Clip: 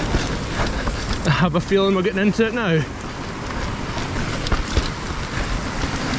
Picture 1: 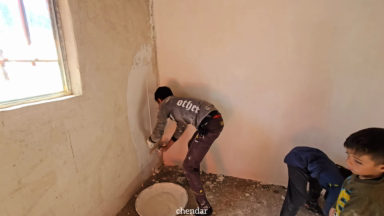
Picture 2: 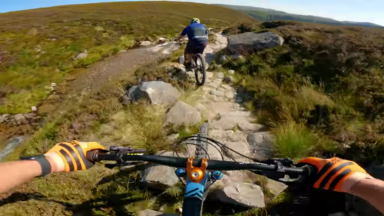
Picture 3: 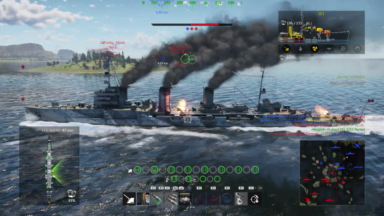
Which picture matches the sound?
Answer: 2